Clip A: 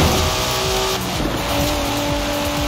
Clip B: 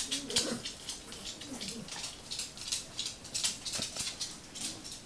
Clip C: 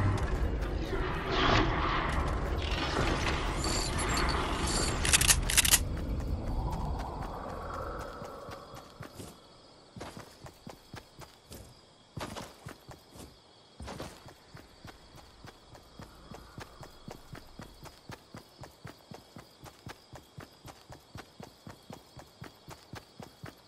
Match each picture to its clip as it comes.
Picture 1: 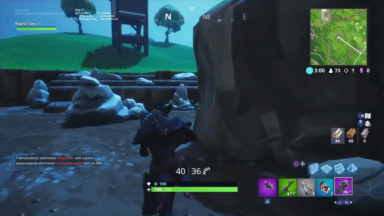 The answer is C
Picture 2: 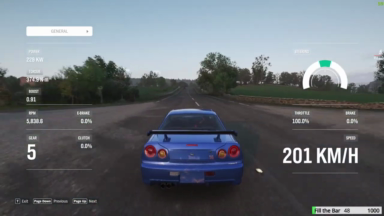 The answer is A